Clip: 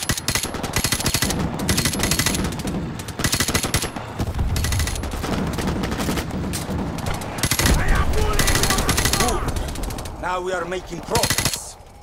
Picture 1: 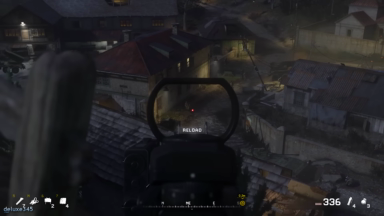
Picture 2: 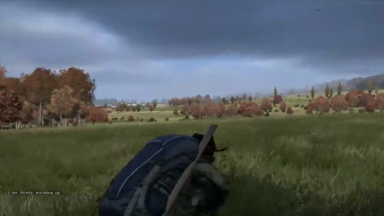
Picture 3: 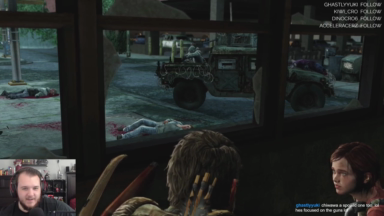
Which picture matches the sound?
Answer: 1